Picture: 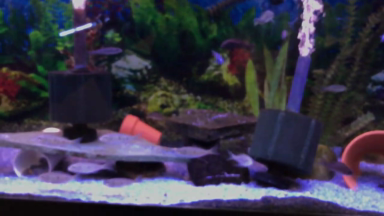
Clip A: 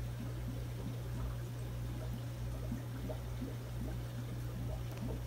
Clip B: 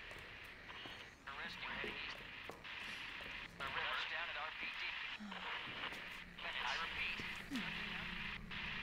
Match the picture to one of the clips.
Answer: A